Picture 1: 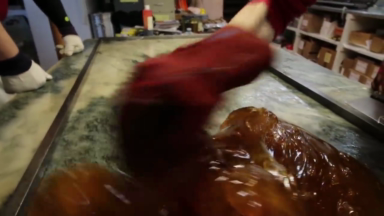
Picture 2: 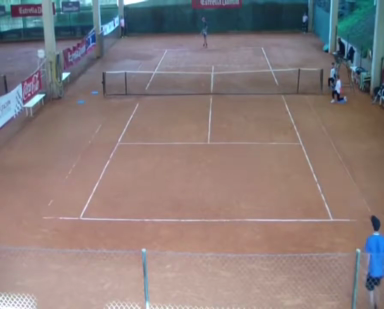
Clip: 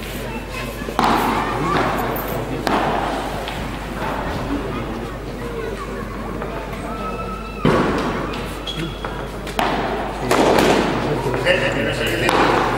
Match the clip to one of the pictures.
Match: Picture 2